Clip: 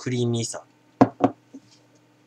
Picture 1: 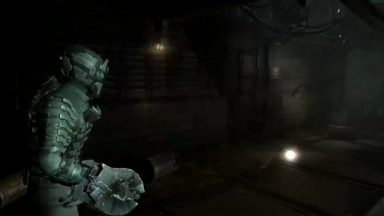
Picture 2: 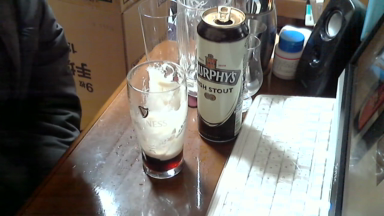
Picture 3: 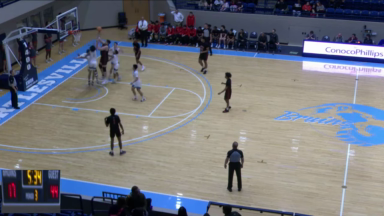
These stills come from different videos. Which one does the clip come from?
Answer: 2